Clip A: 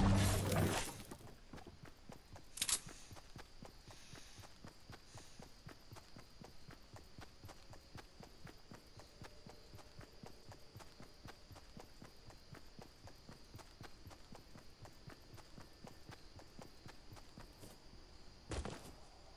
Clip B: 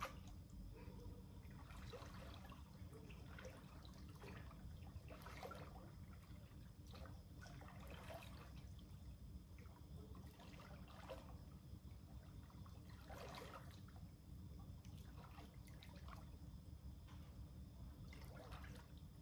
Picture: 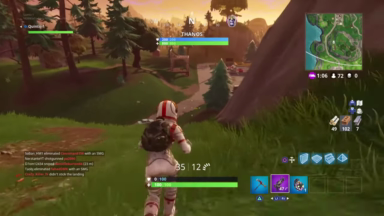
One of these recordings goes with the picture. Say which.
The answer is A